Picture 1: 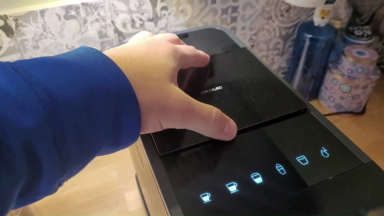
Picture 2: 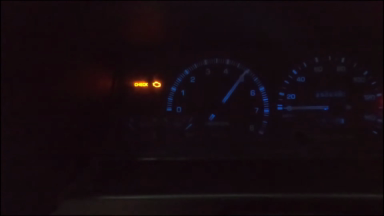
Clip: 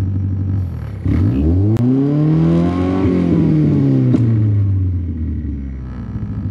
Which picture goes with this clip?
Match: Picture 2